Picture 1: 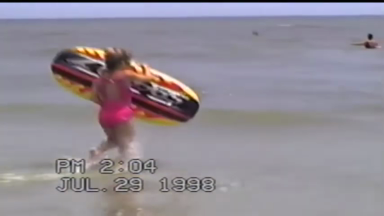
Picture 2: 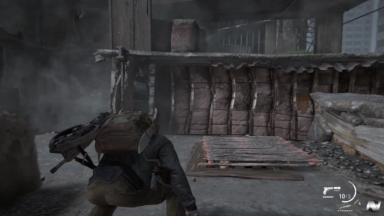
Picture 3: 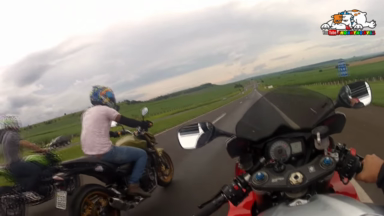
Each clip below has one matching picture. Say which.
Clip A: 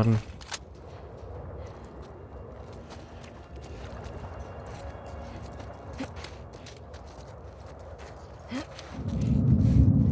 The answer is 2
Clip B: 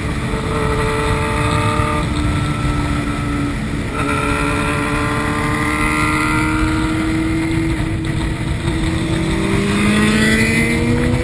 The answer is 3